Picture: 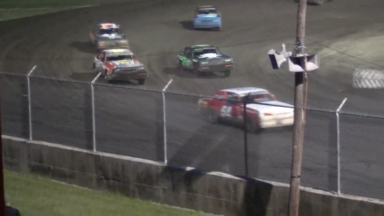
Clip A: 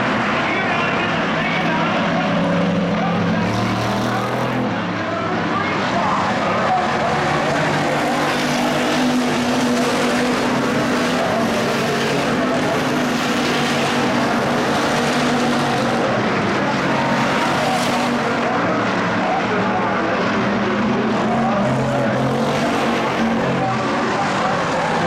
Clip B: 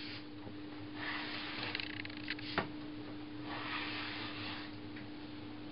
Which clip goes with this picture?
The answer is A